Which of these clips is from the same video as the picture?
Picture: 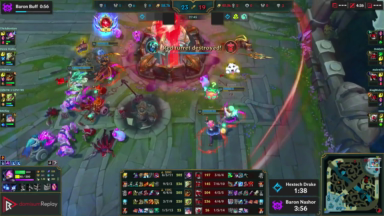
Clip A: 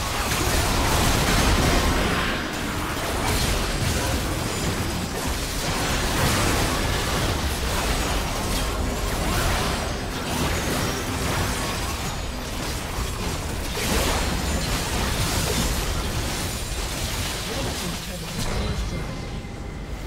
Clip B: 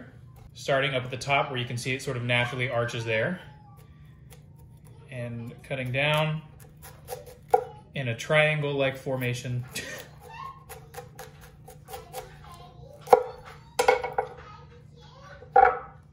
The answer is A